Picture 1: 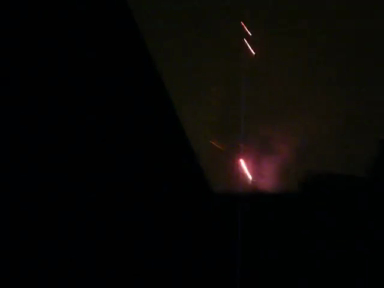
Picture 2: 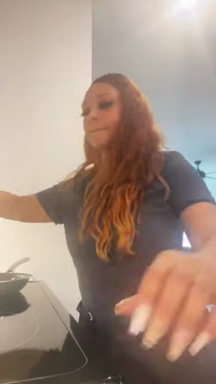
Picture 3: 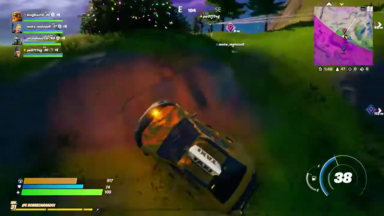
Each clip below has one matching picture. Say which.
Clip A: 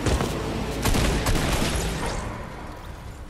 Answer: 3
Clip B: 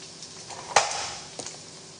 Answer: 2